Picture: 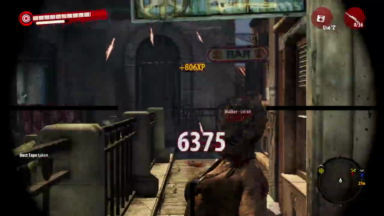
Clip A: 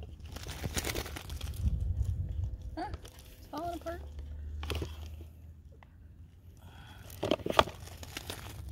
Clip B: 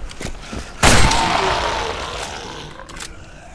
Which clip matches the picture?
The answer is B